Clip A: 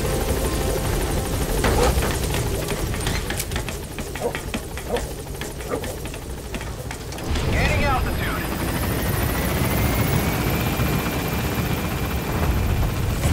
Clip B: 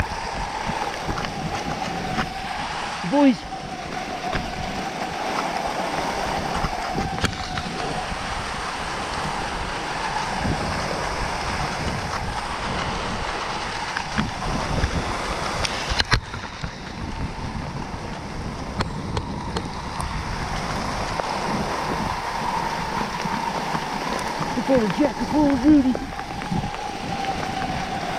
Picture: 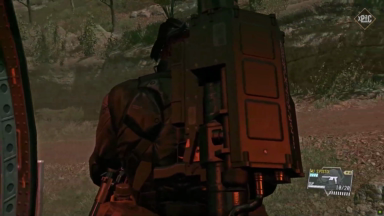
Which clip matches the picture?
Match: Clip A